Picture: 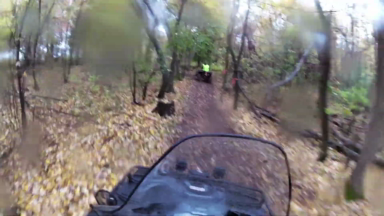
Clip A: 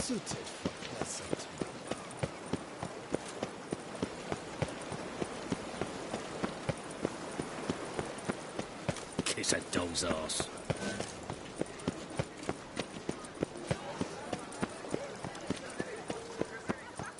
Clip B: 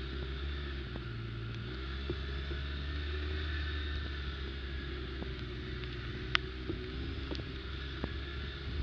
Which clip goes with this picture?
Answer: B